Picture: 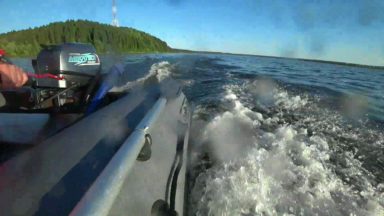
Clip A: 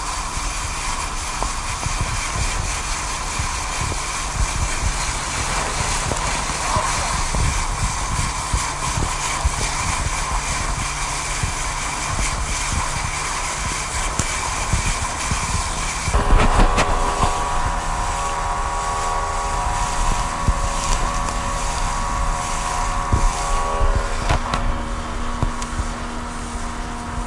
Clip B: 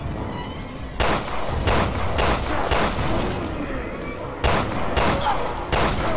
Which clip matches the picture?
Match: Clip A